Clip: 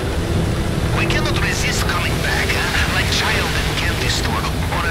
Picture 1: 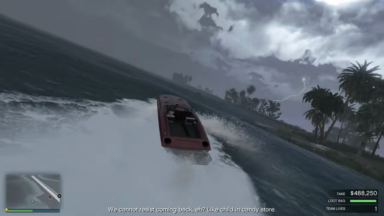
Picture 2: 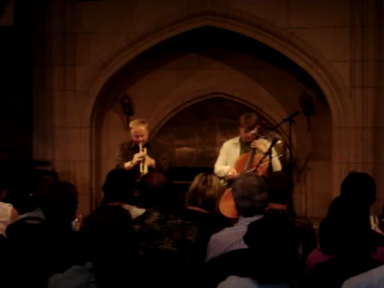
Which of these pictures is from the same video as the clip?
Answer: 1